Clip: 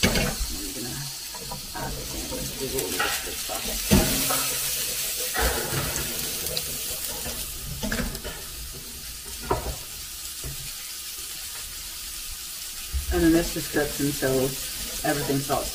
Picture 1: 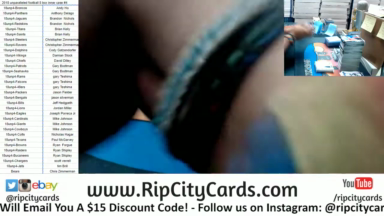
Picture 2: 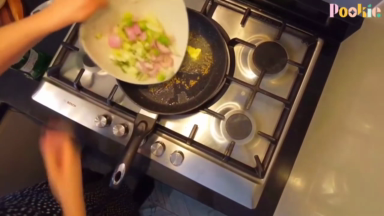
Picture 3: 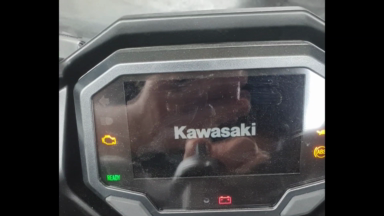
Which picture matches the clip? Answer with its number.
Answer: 2